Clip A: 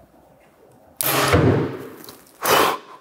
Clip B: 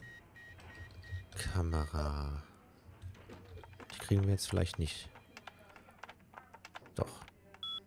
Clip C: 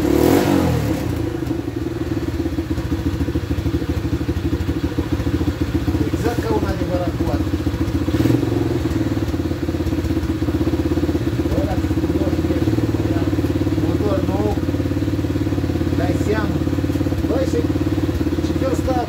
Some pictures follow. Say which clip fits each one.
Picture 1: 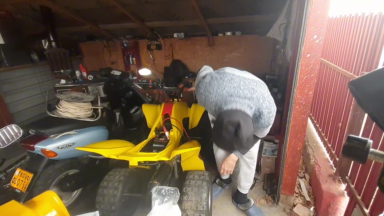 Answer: C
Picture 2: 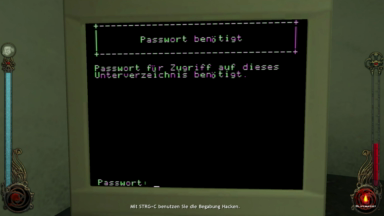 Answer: B